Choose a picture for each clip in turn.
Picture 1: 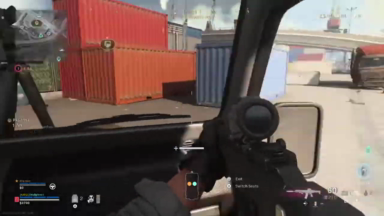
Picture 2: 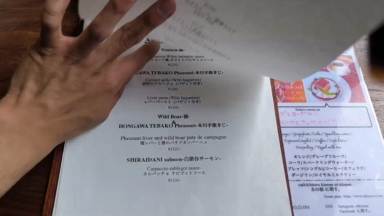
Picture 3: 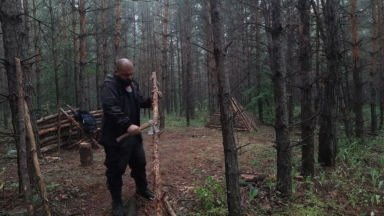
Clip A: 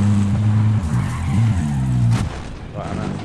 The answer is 1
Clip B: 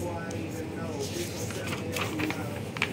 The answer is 2